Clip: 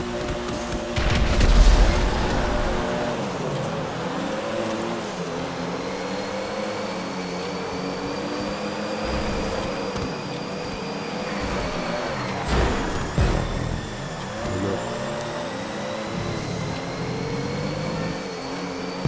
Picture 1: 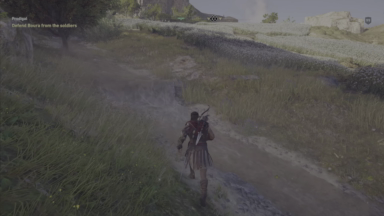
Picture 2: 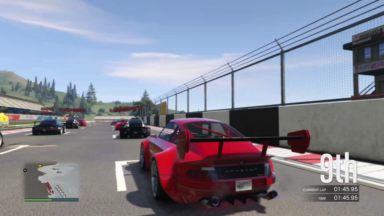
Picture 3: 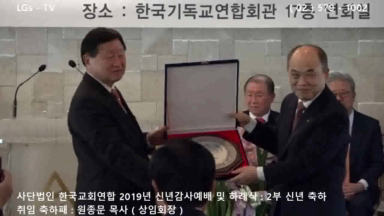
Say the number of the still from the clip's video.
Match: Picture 2